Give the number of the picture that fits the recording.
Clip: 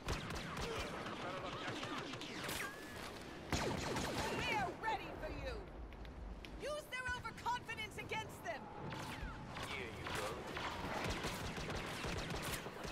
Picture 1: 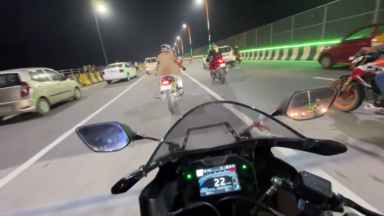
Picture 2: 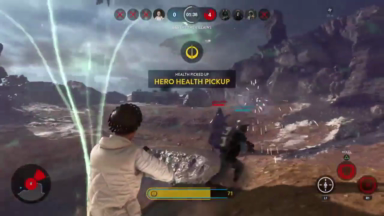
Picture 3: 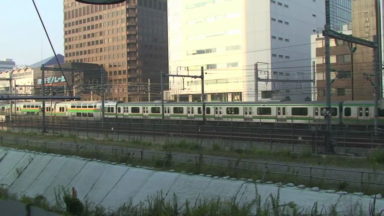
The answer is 2